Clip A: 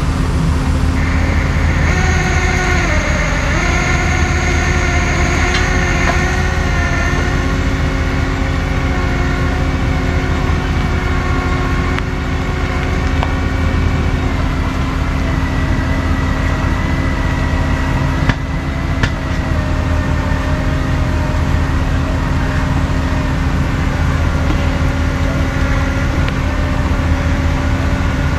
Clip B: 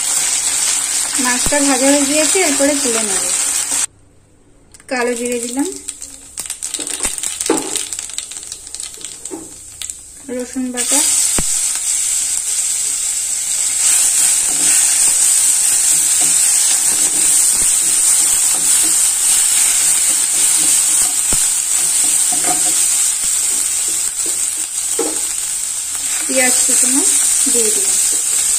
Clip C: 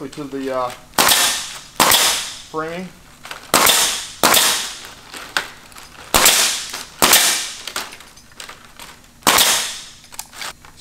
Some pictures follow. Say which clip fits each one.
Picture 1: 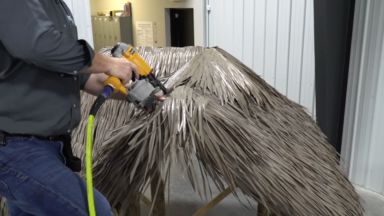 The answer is C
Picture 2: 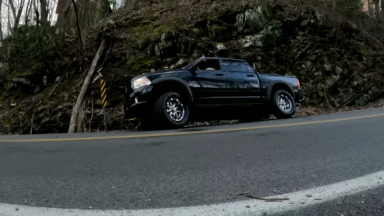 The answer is A